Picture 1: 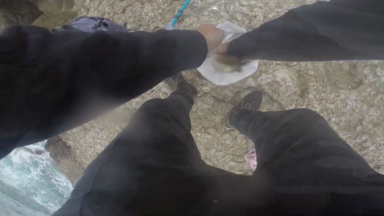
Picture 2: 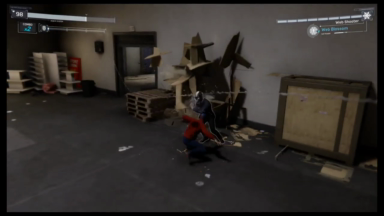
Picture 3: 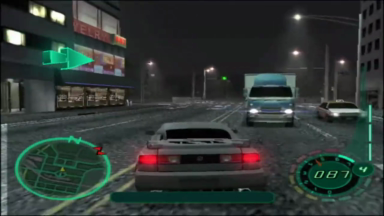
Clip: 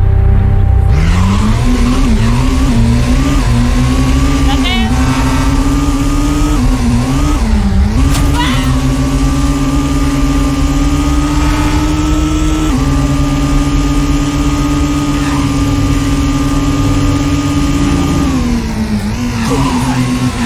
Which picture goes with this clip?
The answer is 3